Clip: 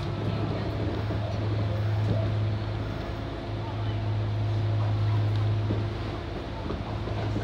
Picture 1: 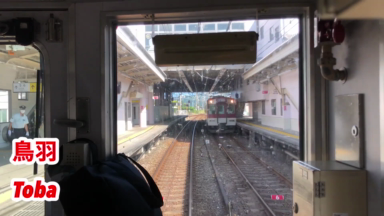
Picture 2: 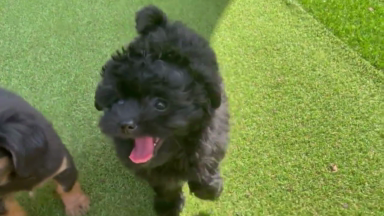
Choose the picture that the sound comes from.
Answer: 1